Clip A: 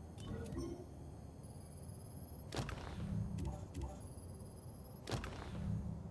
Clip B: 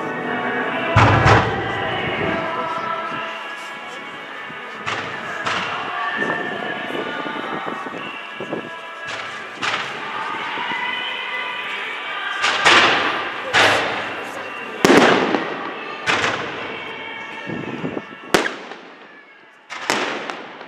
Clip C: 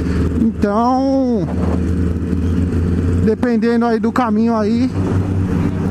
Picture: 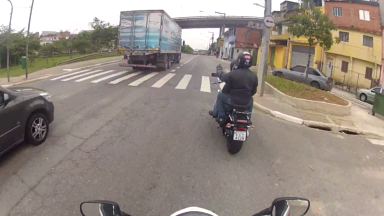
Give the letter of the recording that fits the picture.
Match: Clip C